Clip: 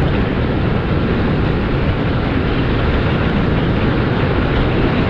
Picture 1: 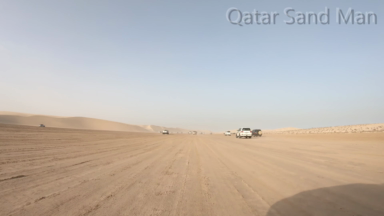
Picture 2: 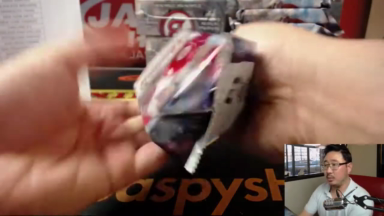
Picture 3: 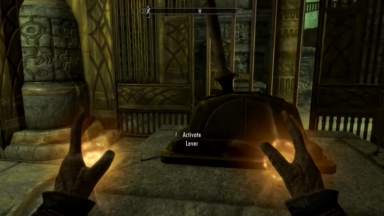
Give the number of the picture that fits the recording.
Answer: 1